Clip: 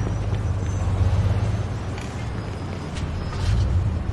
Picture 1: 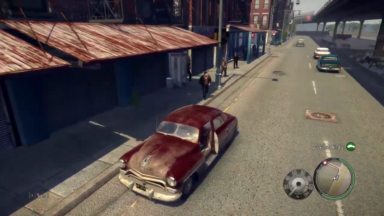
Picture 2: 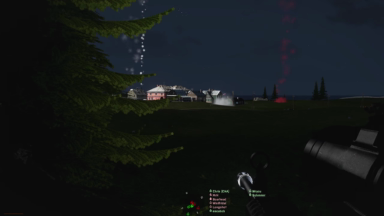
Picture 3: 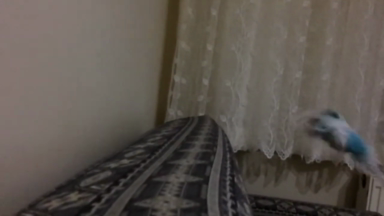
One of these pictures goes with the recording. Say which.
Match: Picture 1